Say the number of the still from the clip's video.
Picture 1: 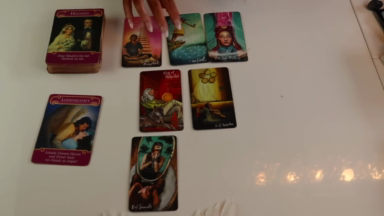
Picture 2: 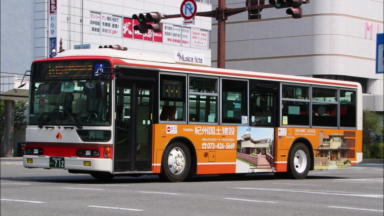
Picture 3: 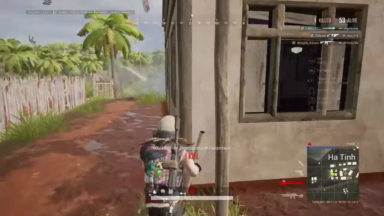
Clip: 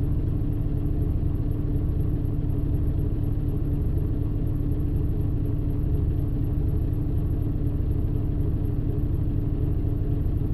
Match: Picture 2